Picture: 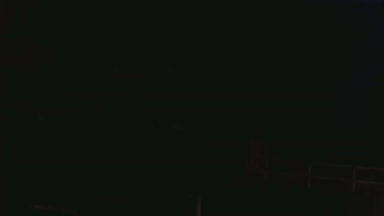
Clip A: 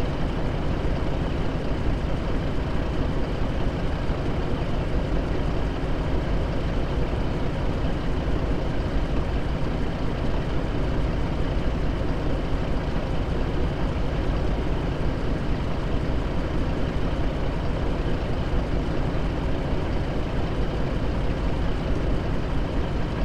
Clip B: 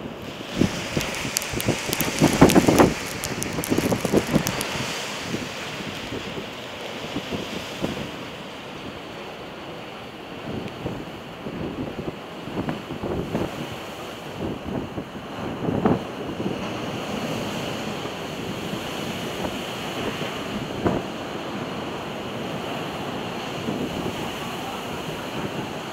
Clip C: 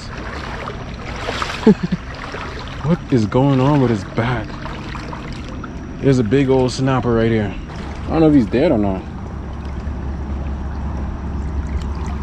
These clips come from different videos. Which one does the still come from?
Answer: B